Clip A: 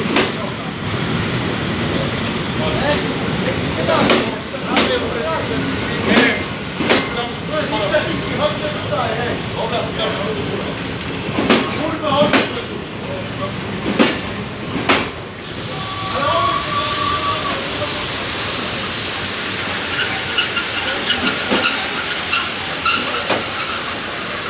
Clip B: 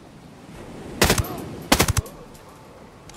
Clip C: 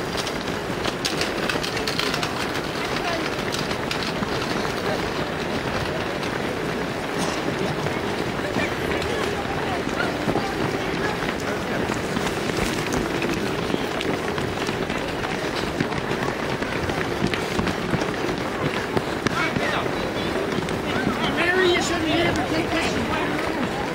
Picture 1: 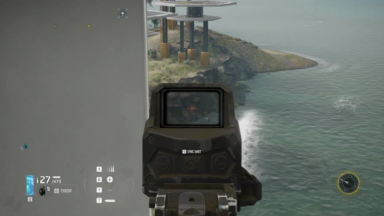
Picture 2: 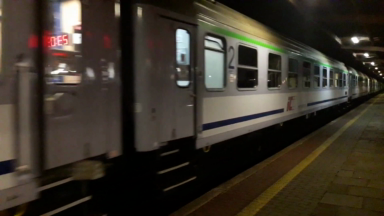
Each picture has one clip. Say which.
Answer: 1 B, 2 A